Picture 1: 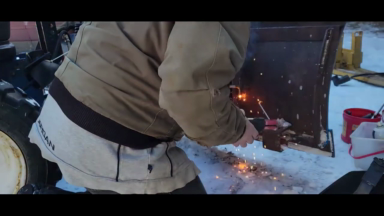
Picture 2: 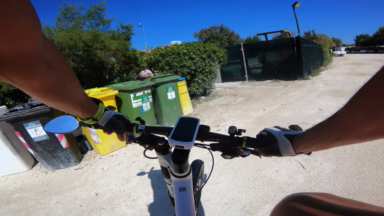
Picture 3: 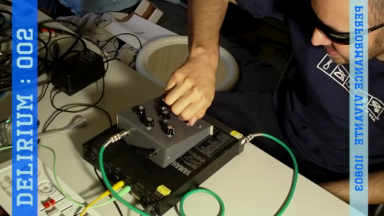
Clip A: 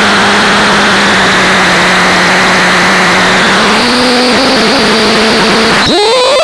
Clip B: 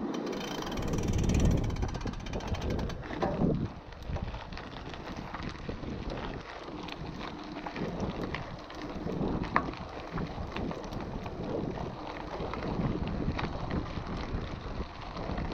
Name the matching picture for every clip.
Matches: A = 3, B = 2